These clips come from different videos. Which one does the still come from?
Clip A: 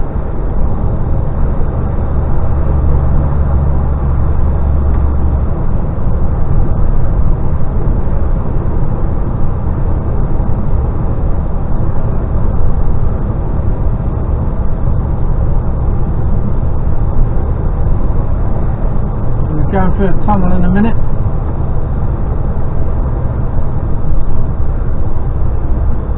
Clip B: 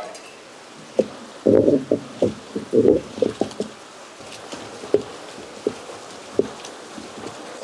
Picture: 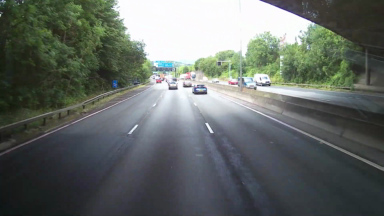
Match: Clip A